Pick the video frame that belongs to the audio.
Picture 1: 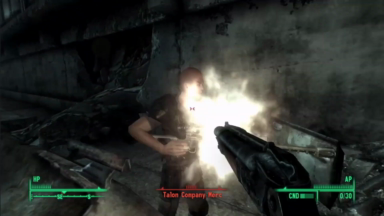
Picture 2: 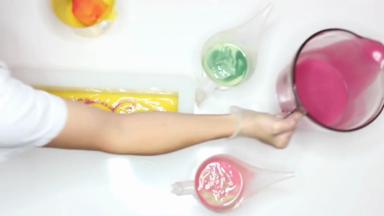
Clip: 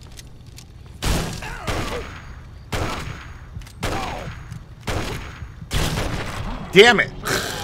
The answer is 1